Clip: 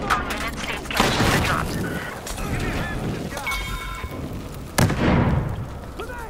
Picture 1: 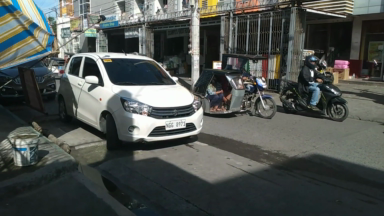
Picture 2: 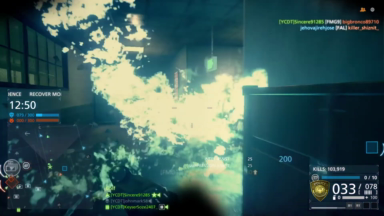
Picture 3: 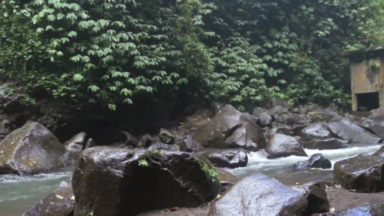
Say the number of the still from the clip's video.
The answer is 2